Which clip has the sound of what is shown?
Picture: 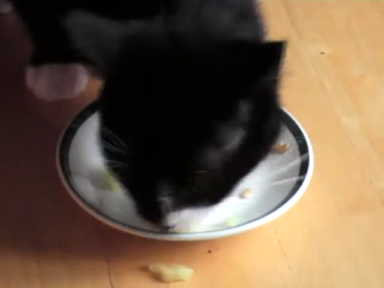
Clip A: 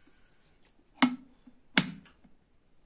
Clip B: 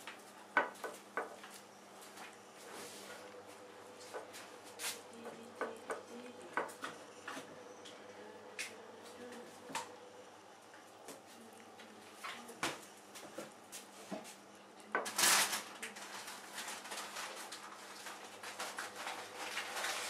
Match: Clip B